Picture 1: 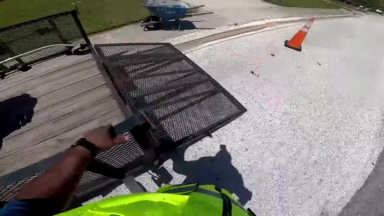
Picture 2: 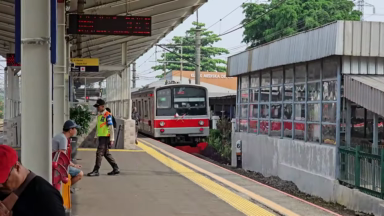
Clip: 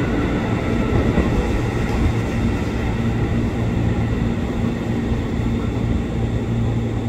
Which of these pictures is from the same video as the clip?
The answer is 2